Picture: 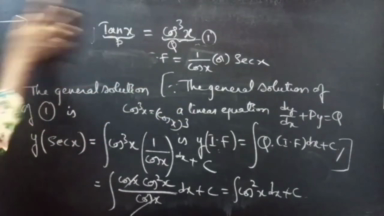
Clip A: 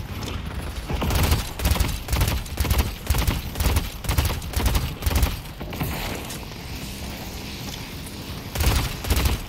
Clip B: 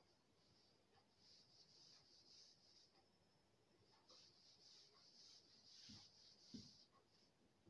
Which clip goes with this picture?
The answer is B